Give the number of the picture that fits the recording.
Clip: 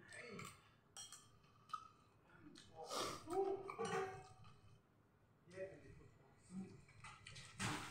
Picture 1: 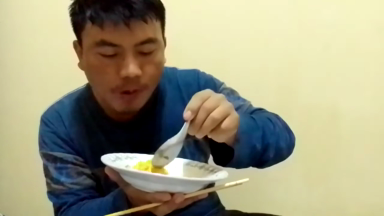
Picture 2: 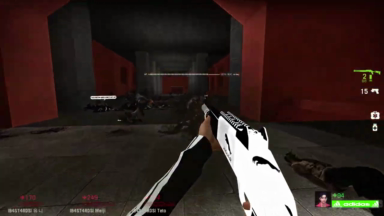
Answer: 1